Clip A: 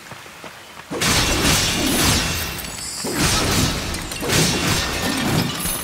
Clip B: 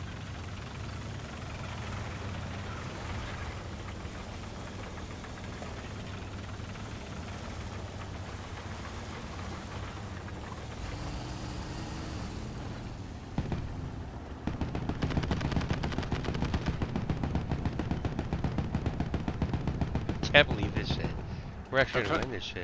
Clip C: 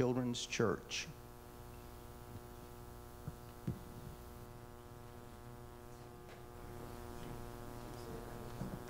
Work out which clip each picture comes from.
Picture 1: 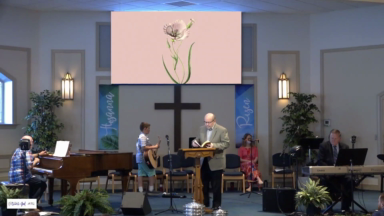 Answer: C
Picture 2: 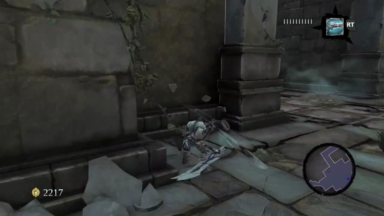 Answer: A